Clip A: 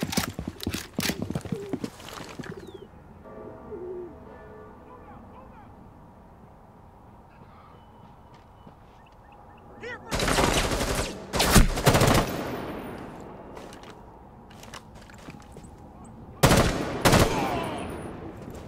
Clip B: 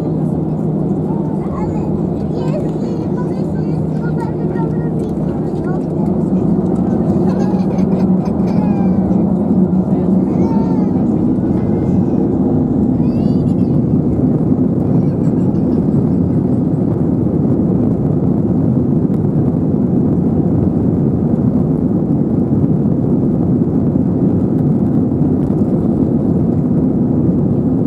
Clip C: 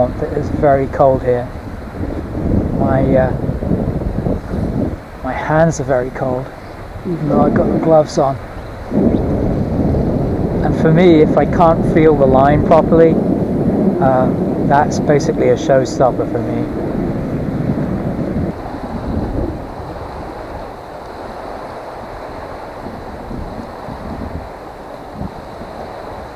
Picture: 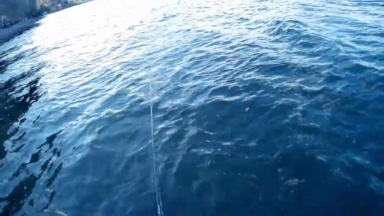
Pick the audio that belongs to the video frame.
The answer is C